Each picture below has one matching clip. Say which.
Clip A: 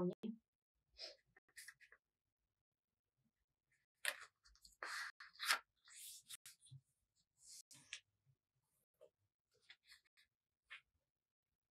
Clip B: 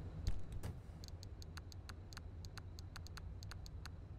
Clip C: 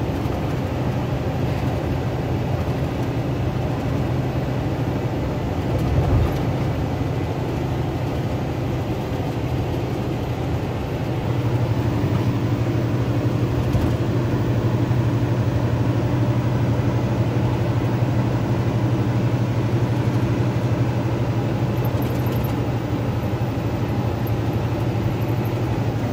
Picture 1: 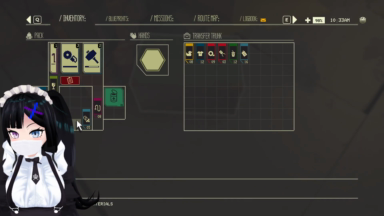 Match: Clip B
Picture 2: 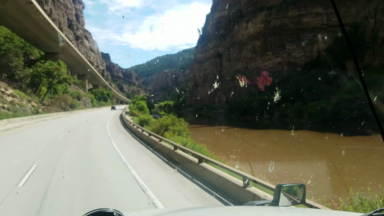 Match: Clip C